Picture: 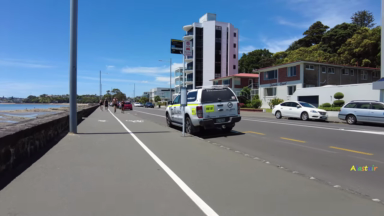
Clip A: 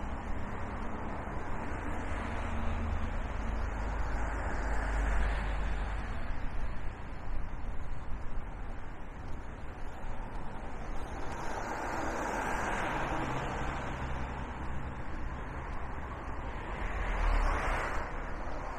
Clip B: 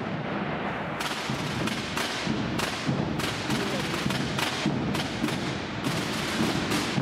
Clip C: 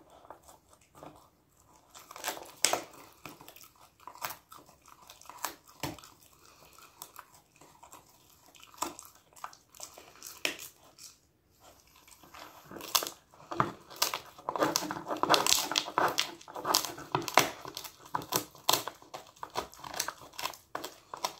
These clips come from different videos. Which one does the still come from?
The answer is A